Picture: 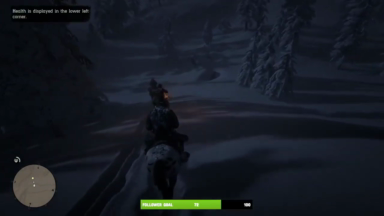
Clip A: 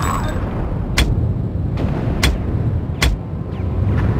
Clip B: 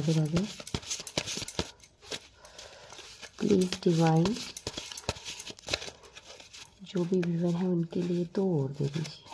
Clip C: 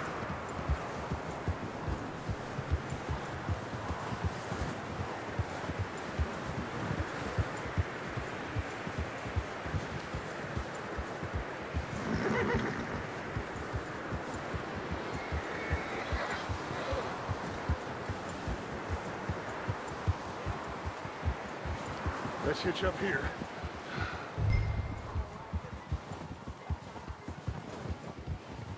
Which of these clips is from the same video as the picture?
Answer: C